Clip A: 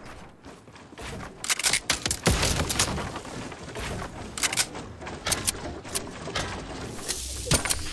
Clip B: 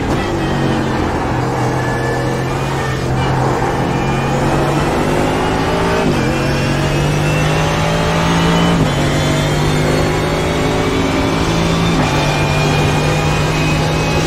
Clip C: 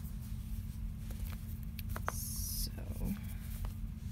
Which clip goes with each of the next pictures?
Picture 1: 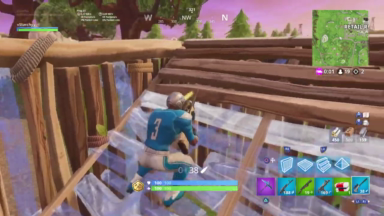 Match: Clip A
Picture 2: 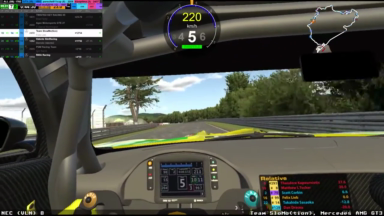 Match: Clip B